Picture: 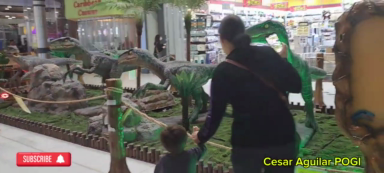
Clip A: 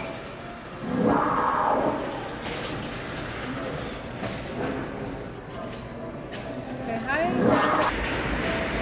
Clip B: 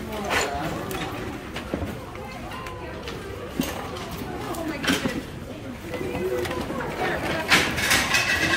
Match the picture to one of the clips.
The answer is A